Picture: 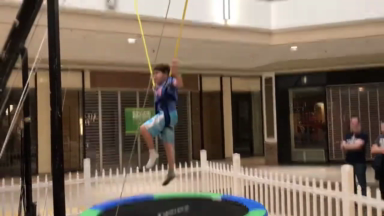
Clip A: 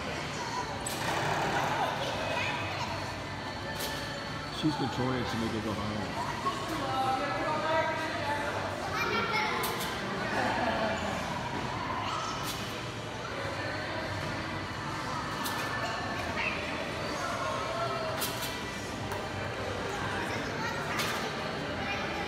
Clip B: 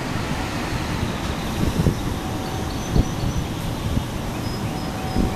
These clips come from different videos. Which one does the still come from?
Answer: A